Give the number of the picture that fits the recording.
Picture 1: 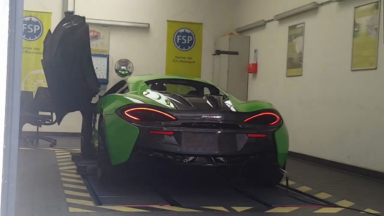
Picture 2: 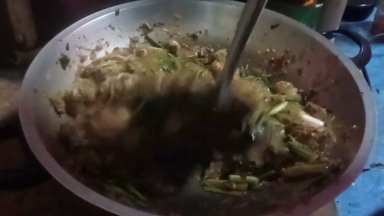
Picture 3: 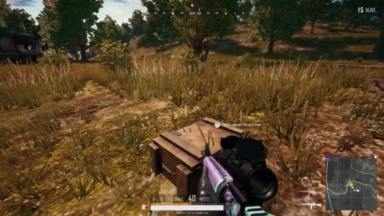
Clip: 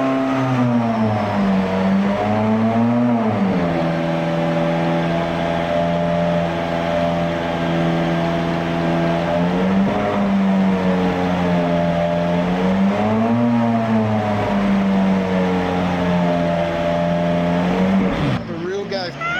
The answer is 1